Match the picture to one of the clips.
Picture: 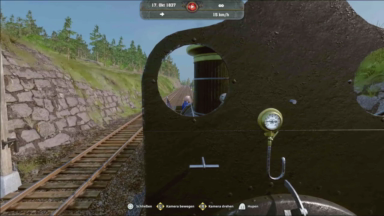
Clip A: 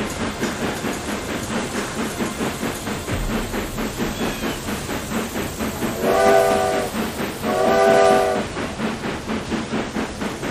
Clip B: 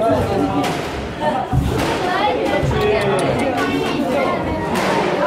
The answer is A